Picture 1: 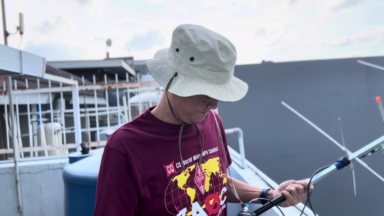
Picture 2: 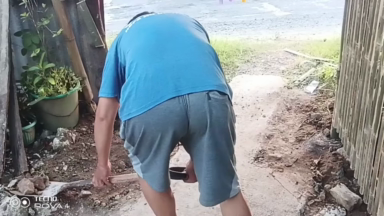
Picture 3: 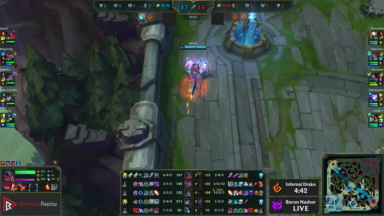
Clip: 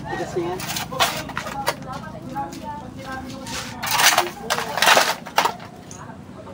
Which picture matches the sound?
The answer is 2